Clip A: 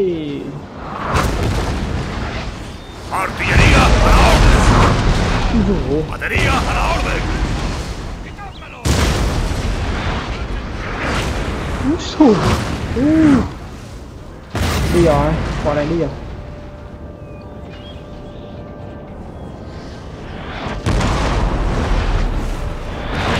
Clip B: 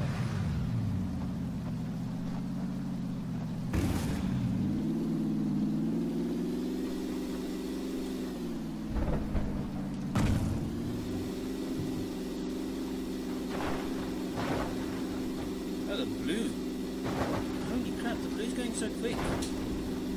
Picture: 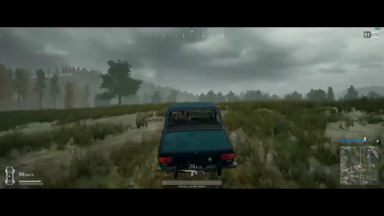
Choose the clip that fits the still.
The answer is B